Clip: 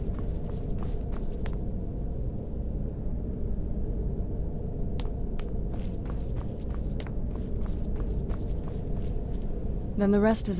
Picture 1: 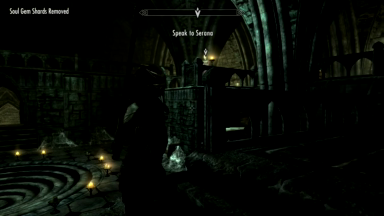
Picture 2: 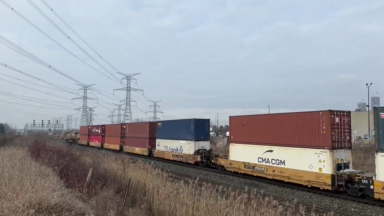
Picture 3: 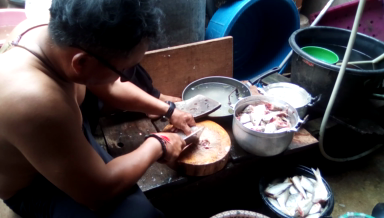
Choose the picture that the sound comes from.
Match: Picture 1